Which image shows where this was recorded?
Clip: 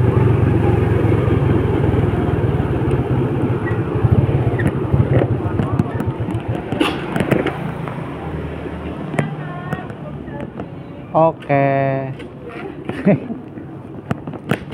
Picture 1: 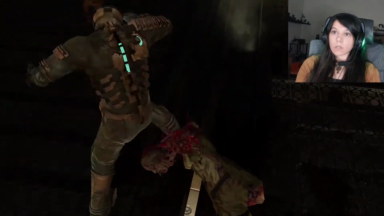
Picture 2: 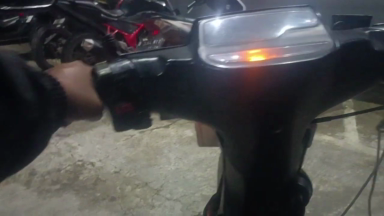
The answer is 2